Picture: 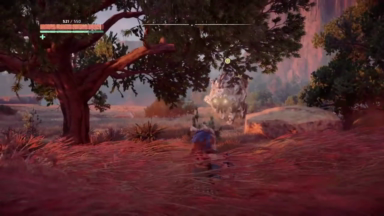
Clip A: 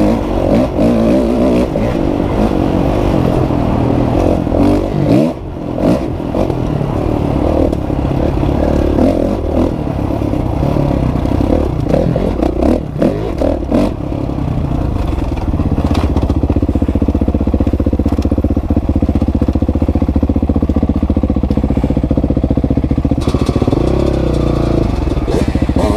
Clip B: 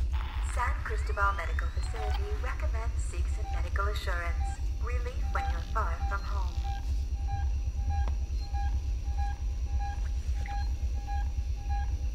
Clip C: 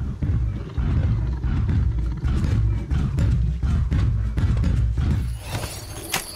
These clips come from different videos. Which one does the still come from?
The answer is C